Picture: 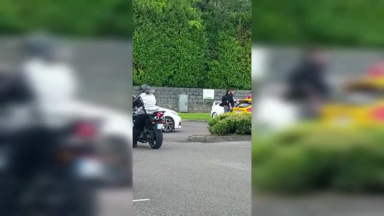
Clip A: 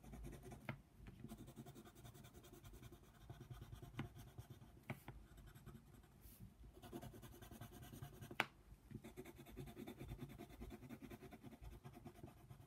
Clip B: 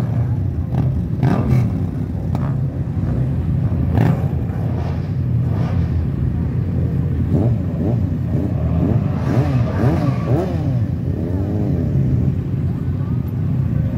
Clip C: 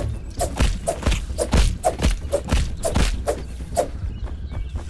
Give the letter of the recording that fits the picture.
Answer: B